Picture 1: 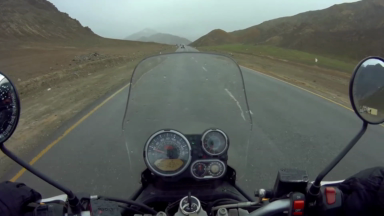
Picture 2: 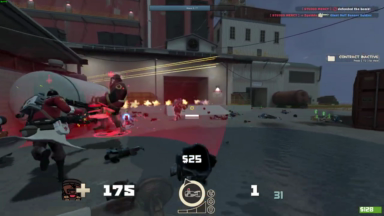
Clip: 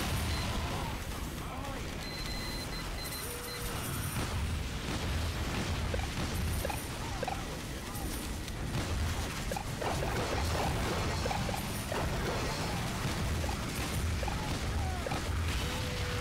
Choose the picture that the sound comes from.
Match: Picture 2